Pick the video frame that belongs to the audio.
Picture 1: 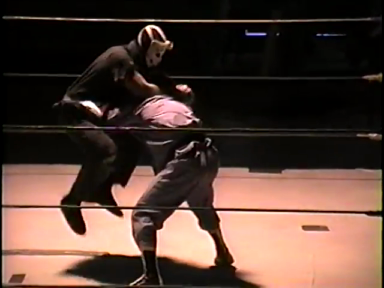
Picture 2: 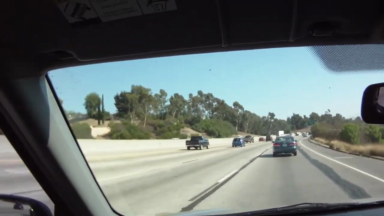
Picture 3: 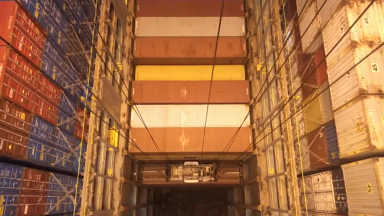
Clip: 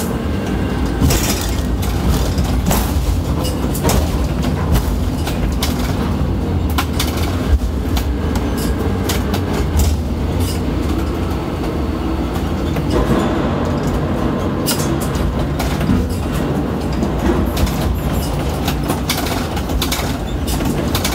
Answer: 3